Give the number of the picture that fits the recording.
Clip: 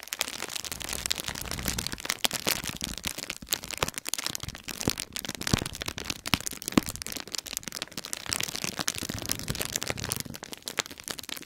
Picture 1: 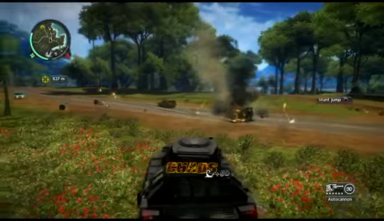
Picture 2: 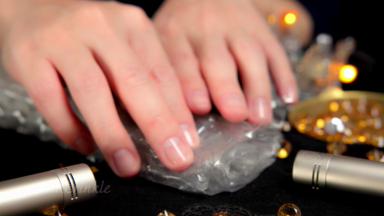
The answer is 2